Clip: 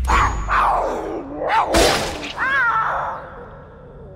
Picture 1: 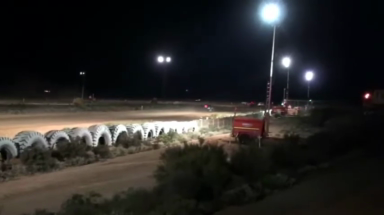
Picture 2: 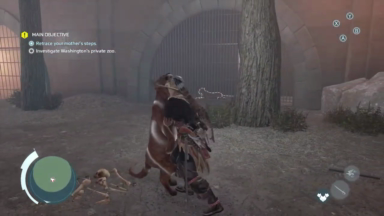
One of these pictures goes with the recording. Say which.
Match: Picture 2